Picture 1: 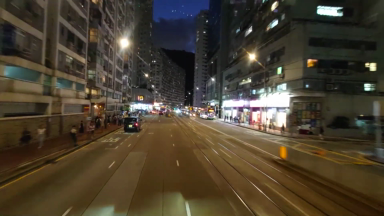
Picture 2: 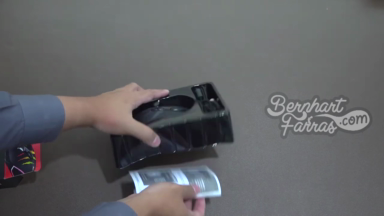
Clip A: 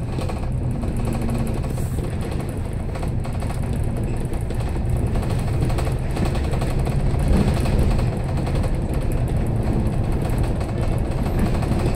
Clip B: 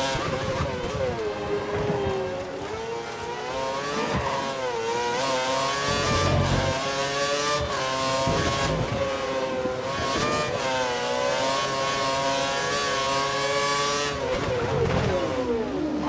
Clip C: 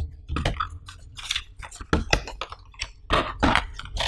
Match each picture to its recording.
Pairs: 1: A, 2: C